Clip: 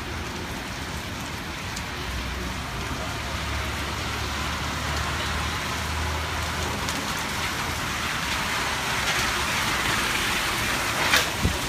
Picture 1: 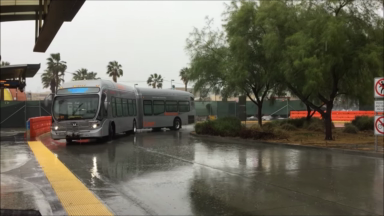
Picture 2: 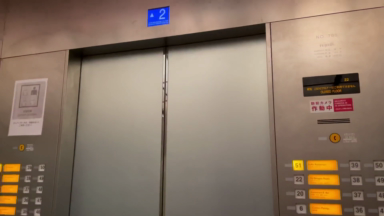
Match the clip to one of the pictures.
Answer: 1